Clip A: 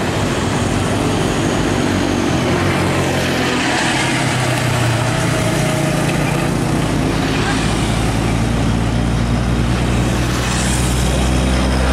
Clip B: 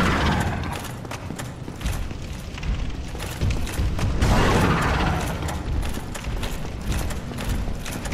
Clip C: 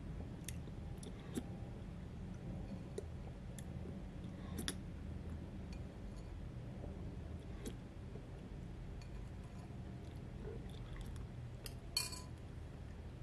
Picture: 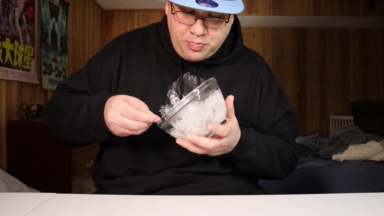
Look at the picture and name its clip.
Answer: C